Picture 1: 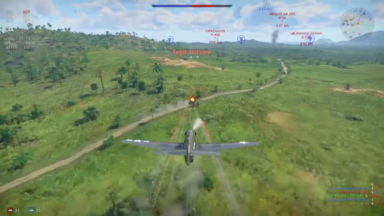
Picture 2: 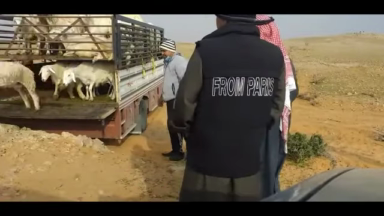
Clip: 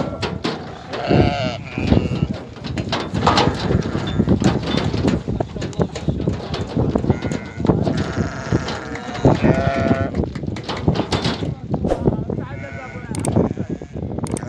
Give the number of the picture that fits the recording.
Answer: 2